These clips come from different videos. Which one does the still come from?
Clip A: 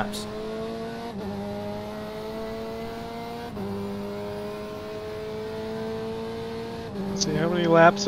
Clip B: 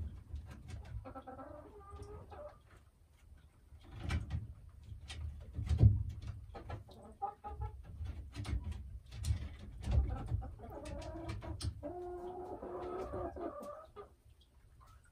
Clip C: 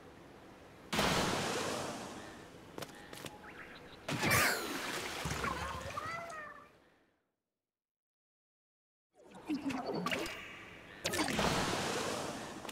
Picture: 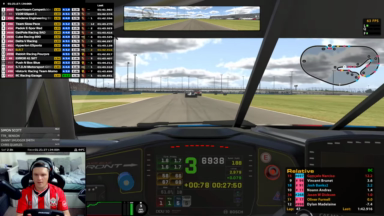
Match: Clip A